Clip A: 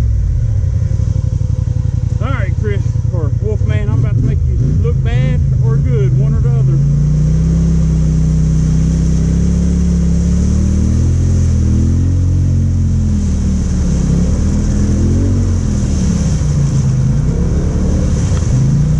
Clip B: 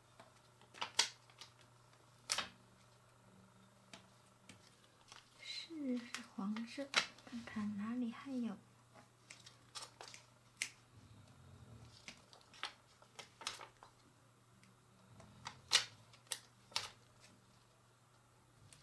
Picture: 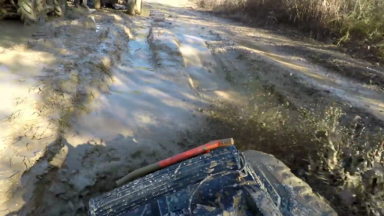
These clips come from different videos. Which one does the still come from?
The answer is A